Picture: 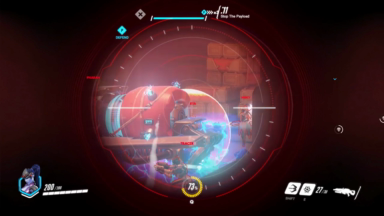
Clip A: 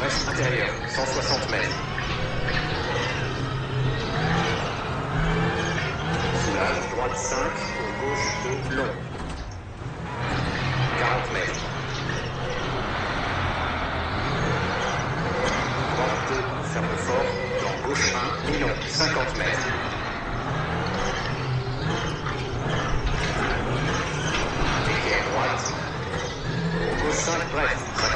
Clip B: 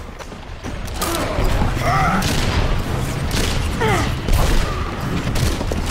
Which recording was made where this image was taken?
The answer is B